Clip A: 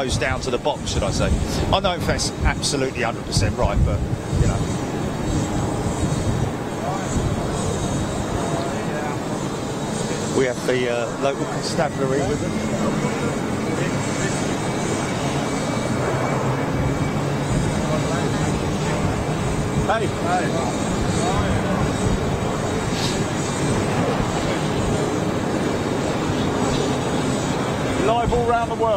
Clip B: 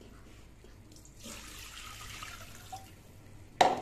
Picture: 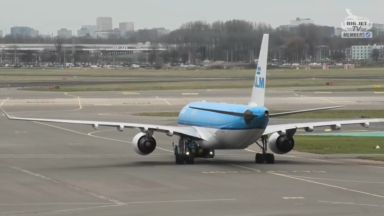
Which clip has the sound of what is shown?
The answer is A